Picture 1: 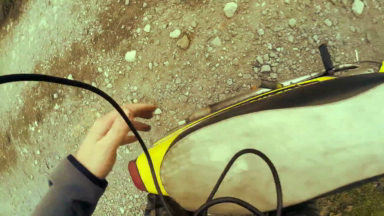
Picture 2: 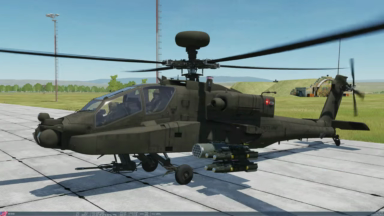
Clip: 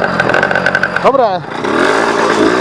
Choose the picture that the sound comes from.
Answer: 1